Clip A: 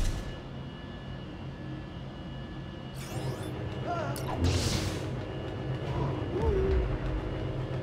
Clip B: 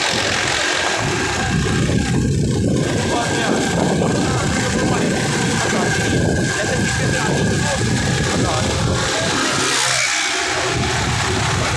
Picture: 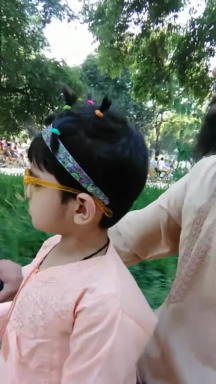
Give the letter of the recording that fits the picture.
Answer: B